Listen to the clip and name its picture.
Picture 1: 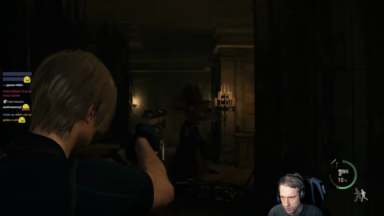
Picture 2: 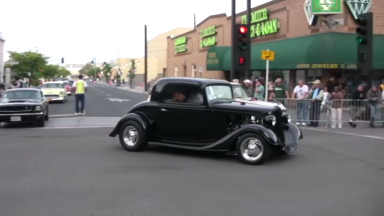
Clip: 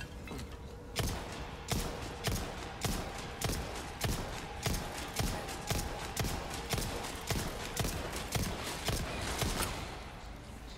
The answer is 1